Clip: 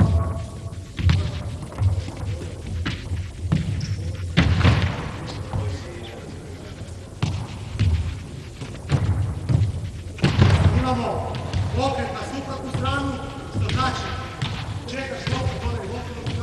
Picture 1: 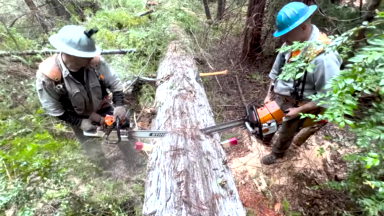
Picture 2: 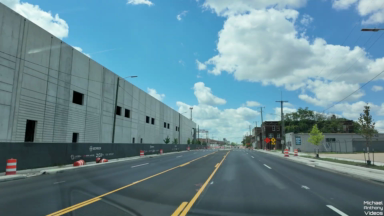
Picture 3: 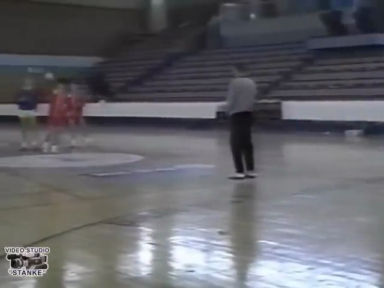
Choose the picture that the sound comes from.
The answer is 3